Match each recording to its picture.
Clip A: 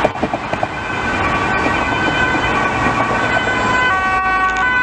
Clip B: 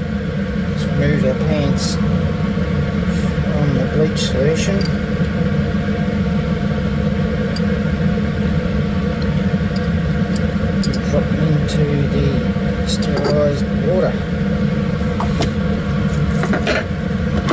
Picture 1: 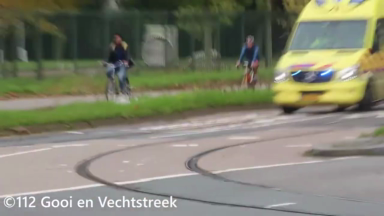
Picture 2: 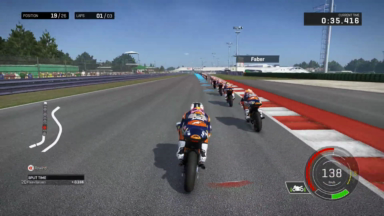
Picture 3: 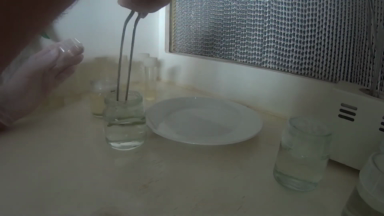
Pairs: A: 1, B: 3